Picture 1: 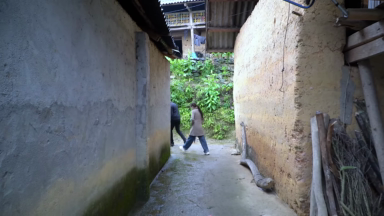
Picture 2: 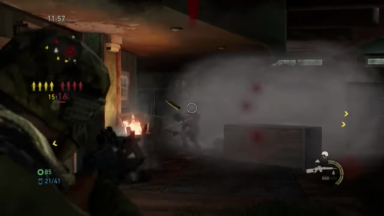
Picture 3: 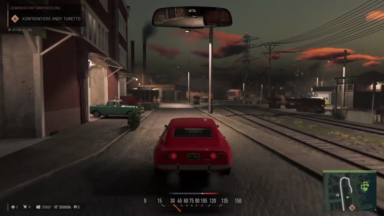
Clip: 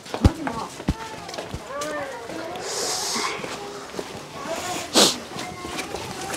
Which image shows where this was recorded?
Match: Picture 1